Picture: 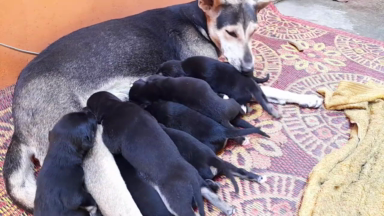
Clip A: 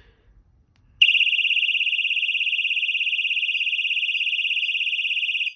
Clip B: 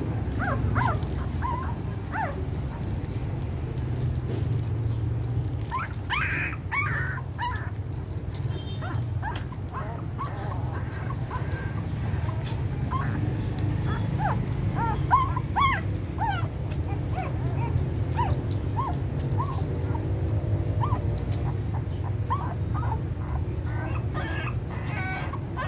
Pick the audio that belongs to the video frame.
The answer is B